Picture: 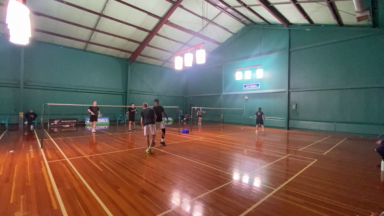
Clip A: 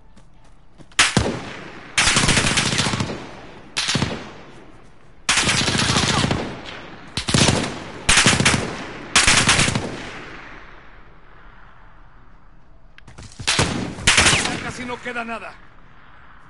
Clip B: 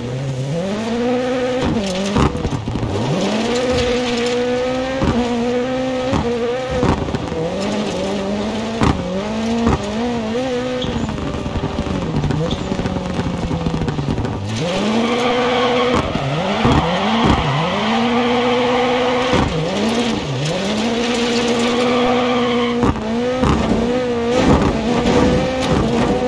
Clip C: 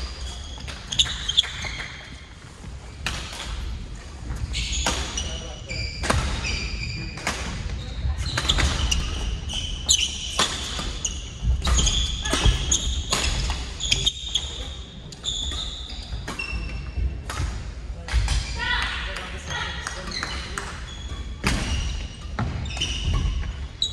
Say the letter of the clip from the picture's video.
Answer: C